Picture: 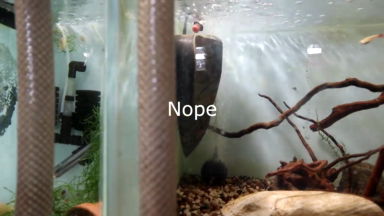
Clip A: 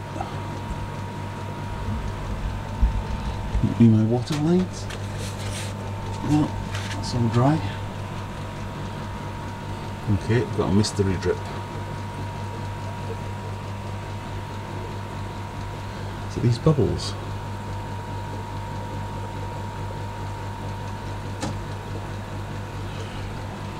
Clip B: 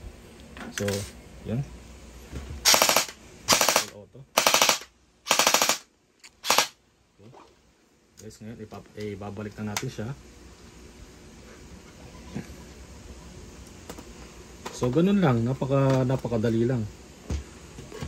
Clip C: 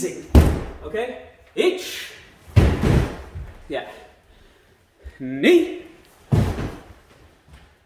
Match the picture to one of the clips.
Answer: A